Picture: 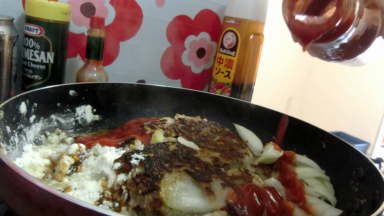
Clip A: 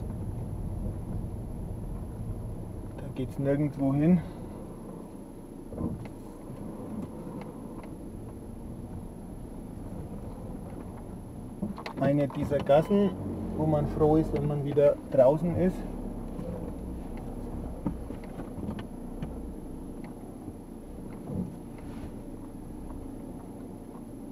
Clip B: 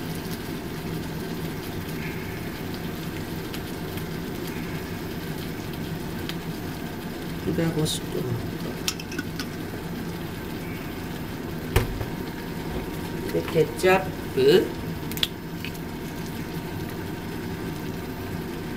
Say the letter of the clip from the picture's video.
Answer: B